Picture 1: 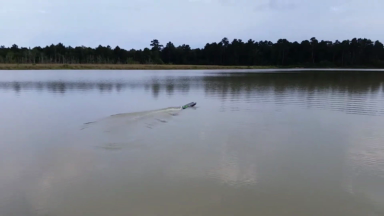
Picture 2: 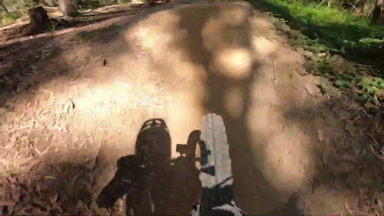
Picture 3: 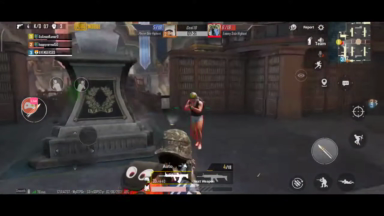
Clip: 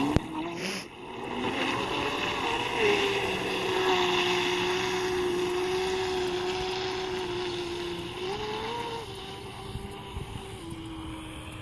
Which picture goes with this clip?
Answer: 1